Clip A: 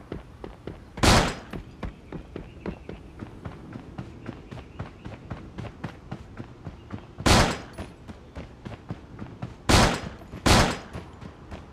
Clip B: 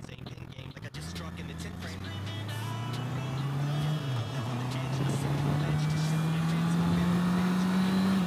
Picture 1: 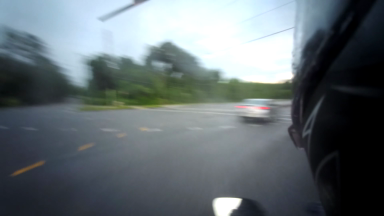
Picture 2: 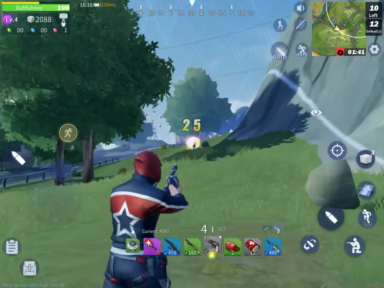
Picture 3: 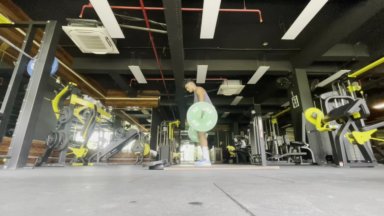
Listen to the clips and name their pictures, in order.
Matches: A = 2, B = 1